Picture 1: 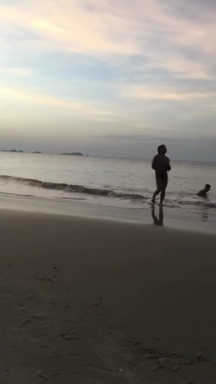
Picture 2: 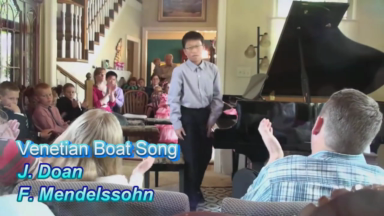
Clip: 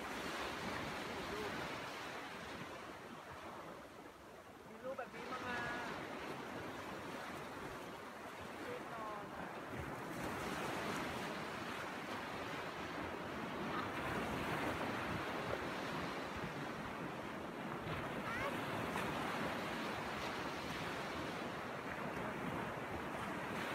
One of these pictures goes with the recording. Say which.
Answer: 1